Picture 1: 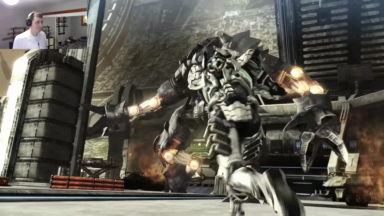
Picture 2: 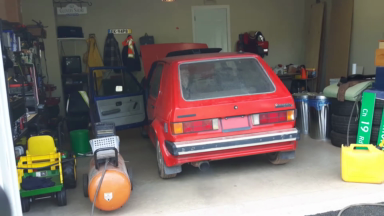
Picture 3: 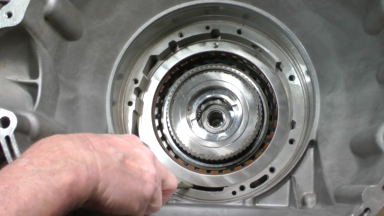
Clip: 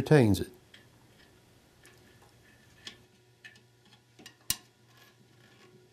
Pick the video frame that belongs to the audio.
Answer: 3